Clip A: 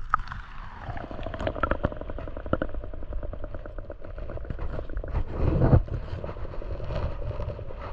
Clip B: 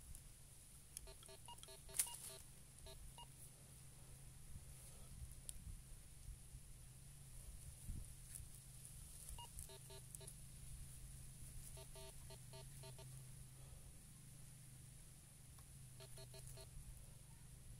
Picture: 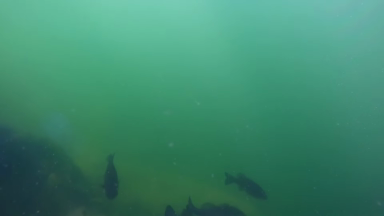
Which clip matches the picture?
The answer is A